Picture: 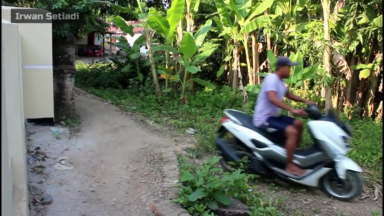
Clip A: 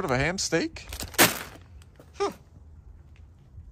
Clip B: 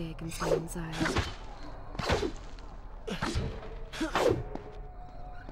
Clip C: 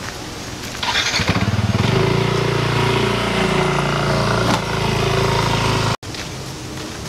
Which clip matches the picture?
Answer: C